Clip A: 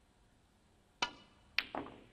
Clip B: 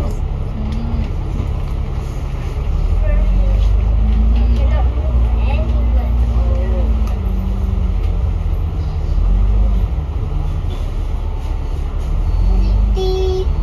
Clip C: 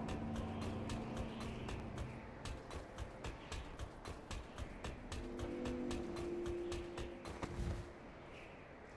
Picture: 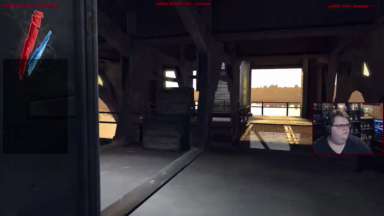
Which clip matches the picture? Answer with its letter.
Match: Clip C